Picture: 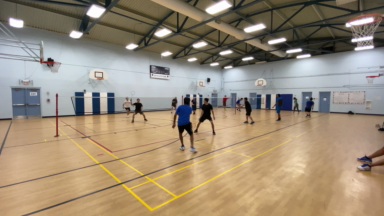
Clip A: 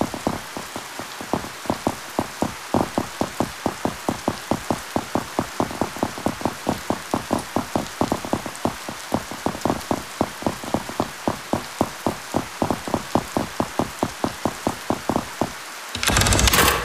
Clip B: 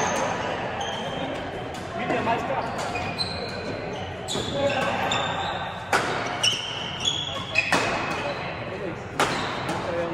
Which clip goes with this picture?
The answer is B